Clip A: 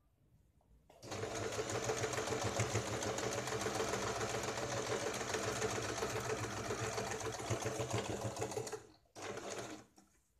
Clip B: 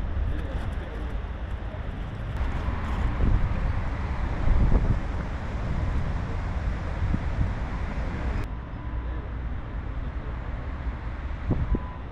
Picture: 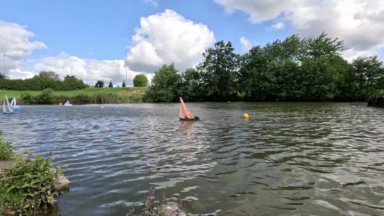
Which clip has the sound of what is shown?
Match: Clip B